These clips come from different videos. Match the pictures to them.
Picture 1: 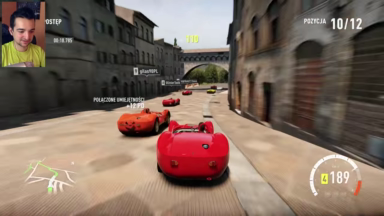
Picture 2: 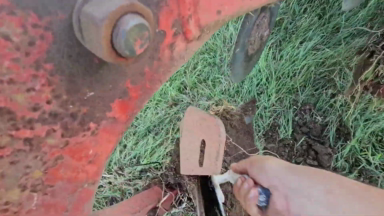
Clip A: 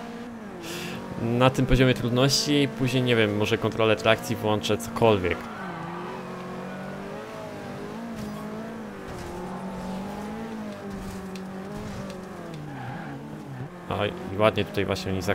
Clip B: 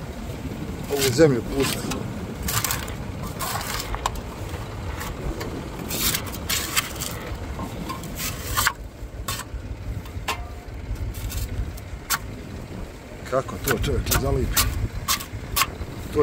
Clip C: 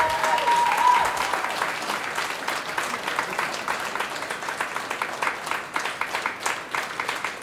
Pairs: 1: A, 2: B